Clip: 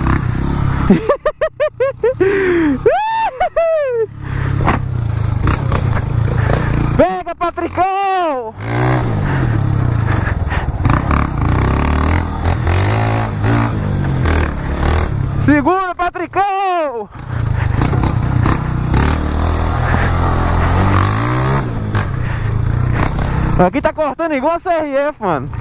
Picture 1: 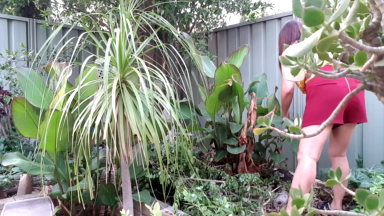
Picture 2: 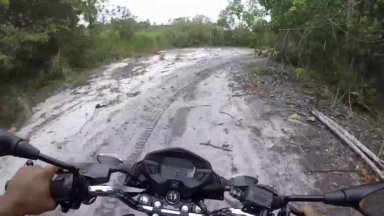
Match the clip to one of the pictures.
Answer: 2